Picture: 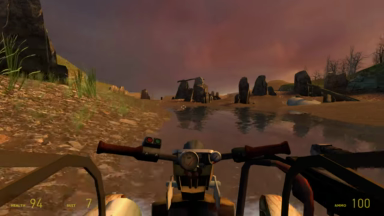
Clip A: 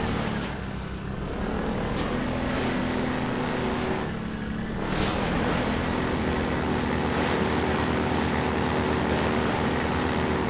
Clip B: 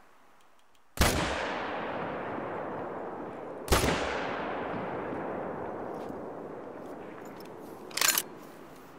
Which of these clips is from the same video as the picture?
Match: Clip A